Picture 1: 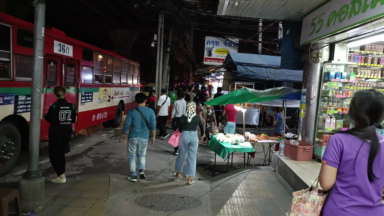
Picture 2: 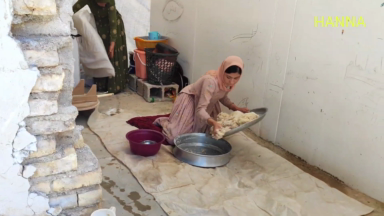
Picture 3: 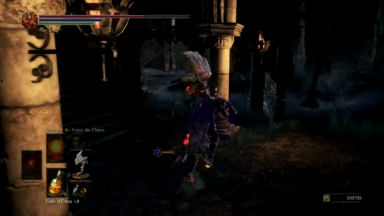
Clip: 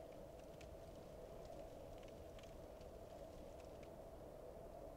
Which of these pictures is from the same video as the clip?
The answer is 3